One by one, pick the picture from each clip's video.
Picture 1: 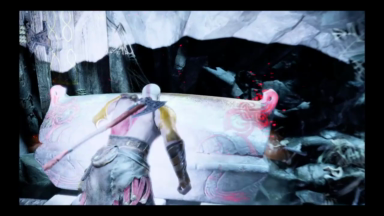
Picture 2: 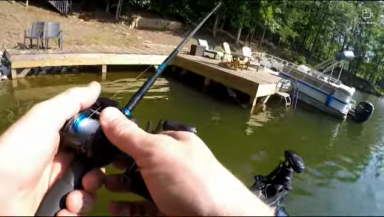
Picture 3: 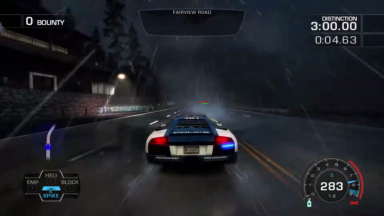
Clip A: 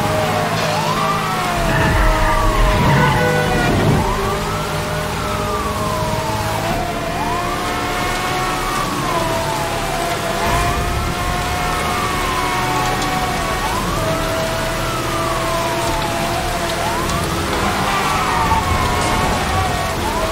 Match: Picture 3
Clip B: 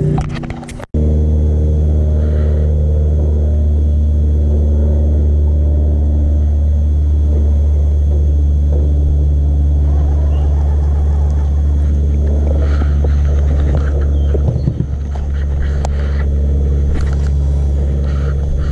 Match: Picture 2